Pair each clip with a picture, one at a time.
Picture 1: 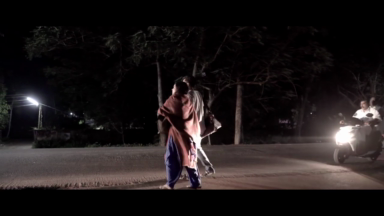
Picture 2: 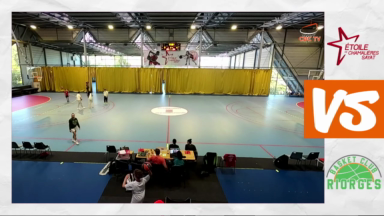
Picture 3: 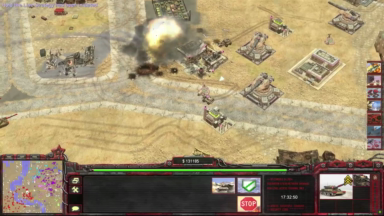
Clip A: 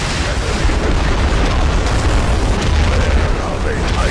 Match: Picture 3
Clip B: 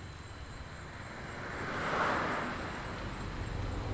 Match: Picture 1